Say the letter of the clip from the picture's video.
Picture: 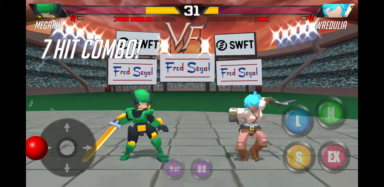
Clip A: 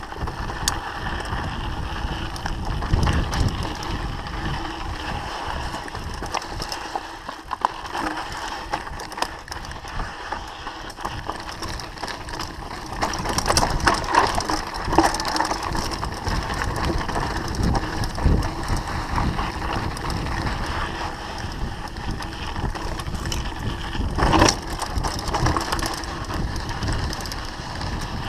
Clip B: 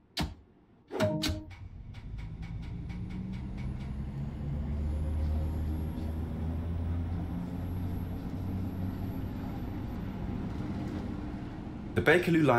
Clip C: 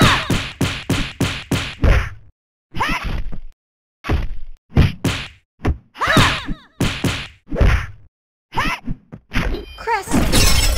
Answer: C